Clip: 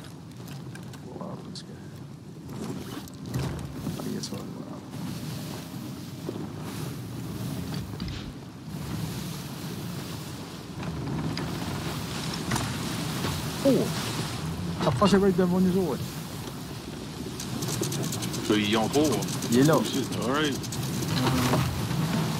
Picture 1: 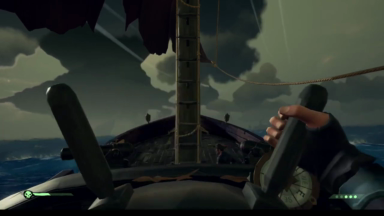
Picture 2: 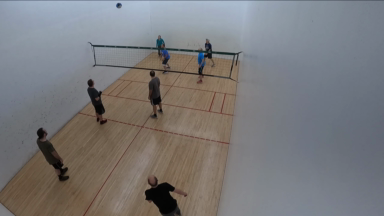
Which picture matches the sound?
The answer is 1